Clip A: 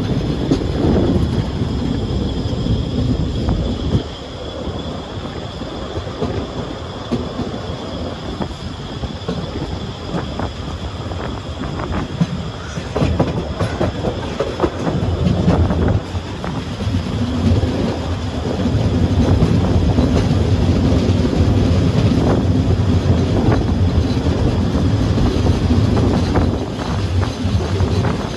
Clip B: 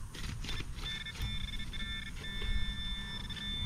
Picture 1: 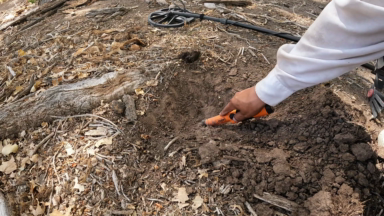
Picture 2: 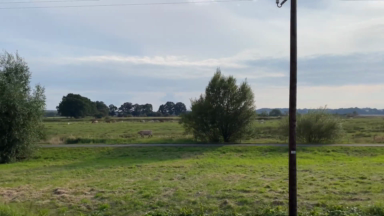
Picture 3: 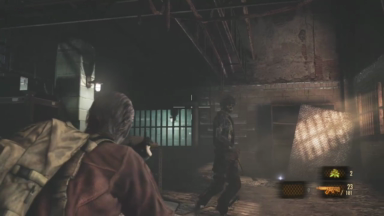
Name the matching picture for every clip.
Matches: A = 2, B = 1